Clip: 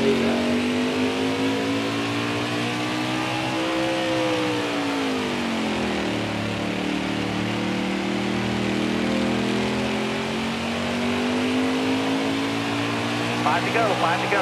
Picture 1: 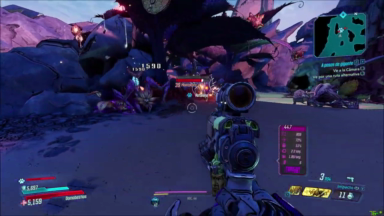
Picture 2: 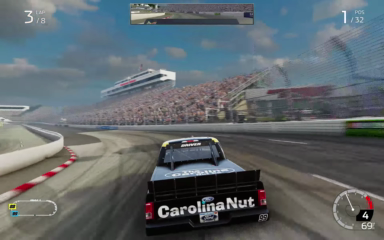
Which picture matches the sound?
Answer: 2